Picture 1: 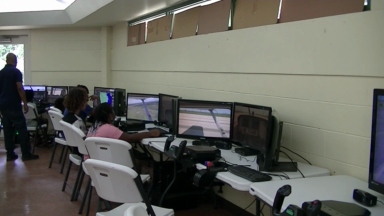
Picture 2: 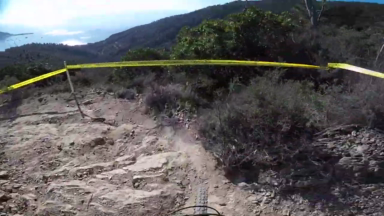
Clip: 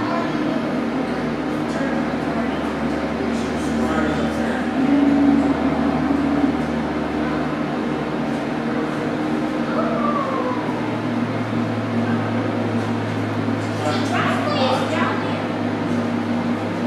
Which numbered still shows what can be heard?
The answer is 1